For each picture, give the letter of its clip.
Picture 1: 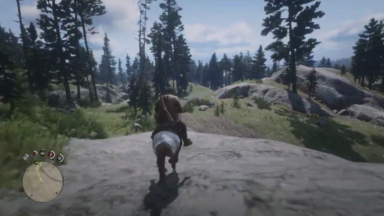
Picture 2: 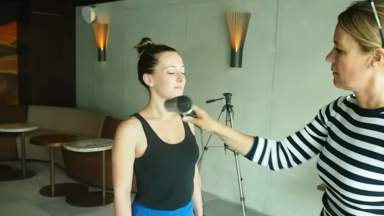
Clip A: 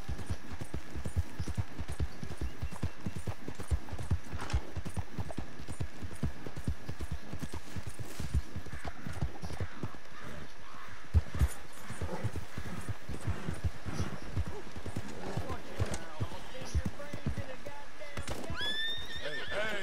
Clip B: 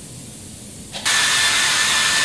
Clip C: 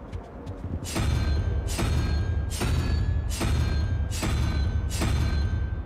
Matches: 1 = A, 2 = B